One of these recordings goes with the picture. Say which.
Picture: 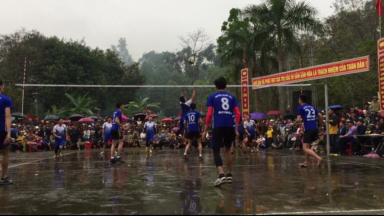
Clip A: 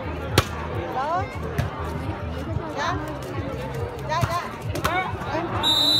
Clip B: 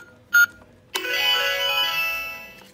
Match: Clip A